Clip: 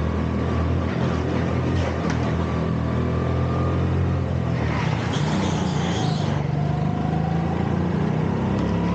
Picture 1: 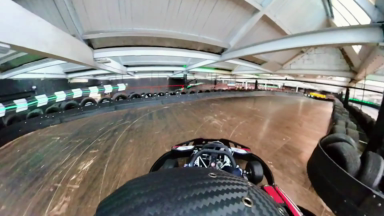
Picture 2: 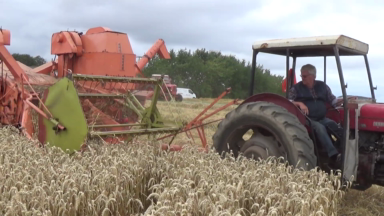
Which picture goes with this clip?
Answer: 1